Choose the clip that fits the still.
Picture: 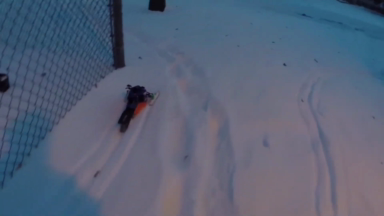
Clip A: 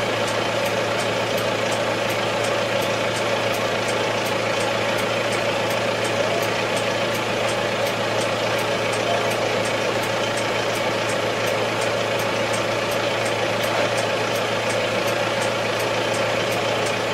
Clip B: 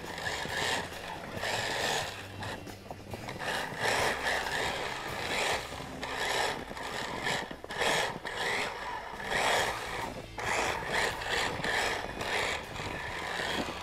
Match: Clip B